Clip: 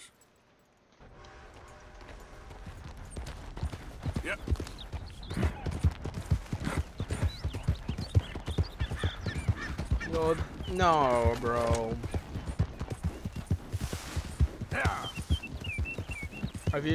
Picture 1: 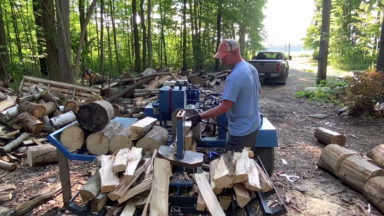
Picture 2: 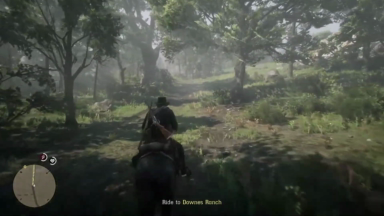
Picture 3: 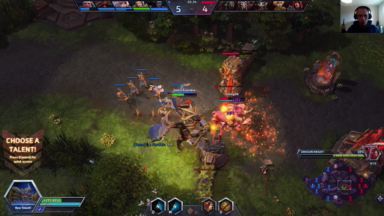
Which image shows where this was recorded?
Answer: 2